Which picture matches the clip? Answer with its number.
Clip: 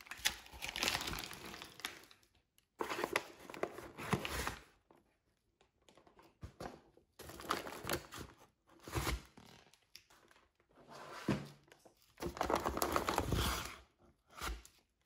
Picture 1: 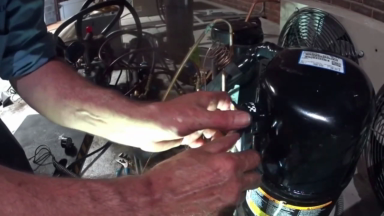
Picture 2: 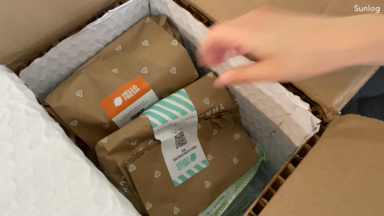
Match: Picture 2